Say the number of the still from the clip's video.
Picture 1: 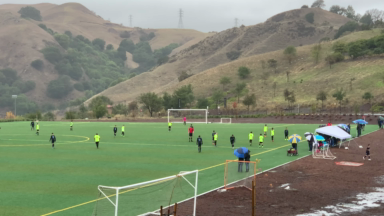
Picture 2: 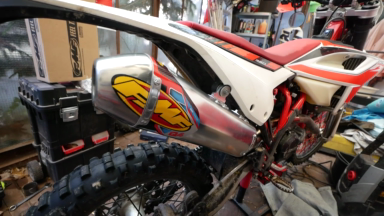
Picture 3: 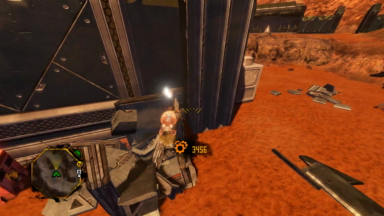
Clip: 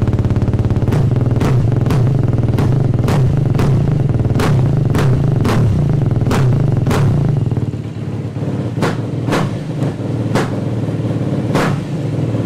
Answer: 2